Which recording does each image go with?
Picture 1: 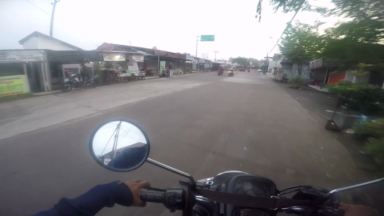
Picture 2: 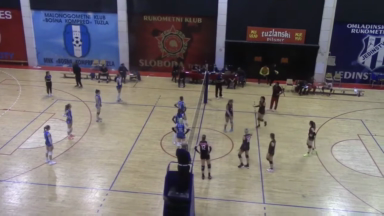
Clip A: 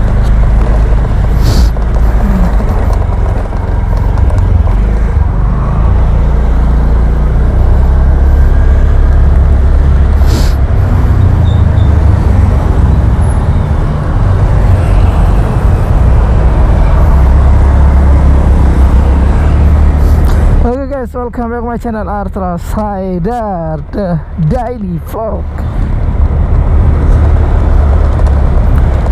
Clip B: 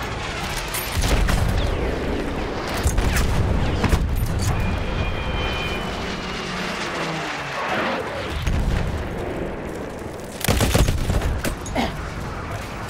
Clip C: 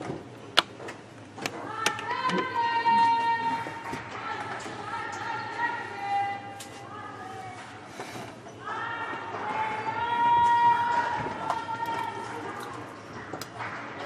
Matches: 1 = A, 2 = C